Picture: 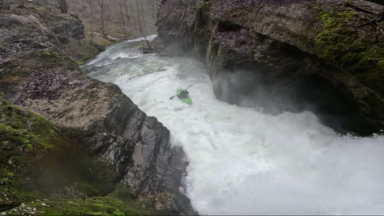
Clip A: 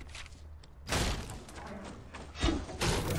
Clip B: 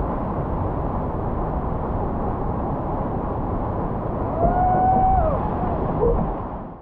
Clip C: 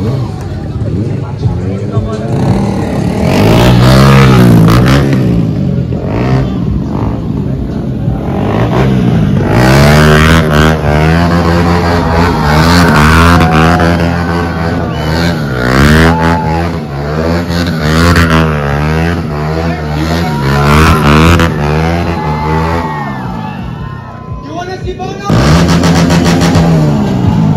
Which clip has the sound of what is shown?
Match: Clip B